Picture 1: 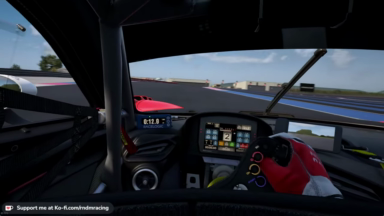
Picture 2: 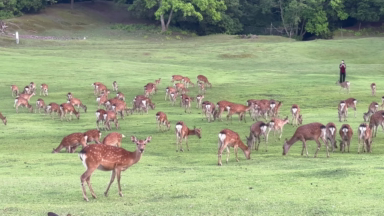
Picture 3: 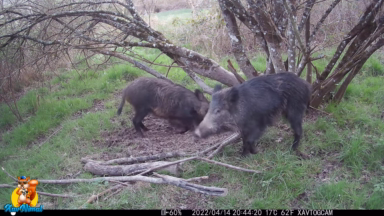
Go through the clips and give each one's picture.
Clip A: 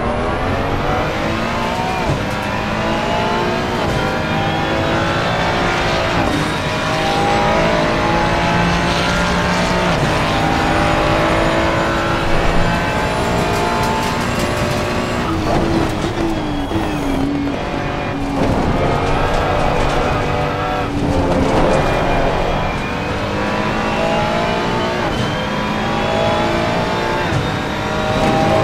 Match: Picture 1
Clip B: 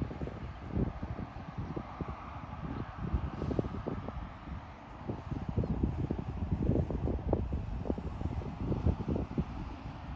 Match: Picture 2